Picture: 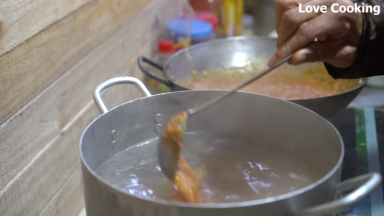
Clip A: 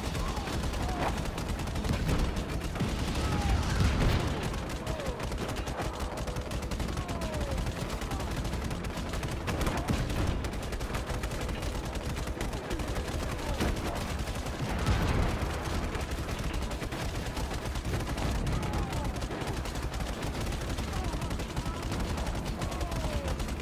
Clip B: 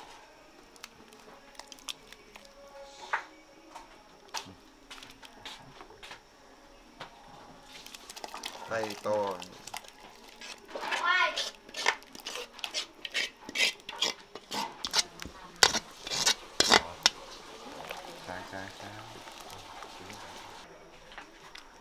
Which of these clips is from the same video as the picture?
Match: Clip B